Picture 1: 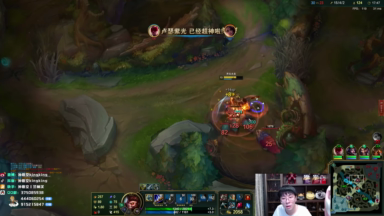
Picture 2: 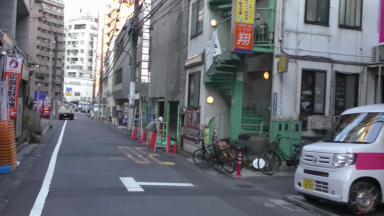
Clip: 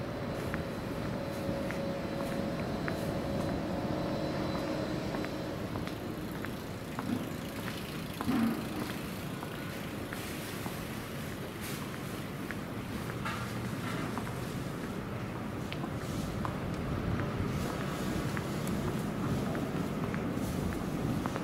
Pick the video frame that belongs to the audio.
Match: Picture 2